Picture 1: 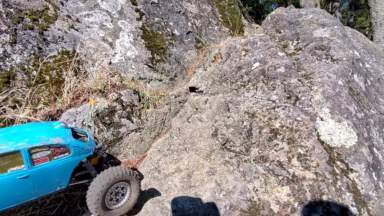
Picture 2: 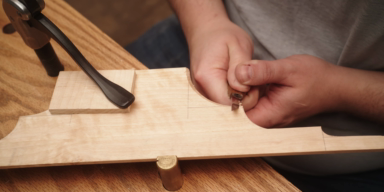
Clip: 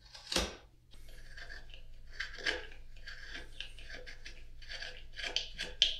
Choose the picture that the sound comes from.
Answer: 2